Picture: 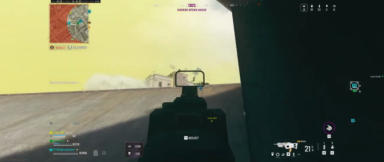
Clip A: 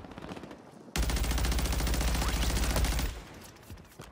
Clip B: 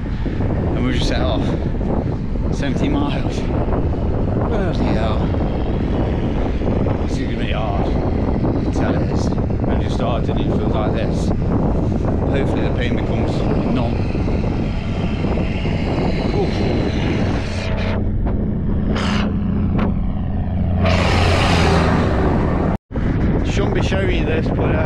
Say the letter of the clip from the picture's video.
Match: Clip A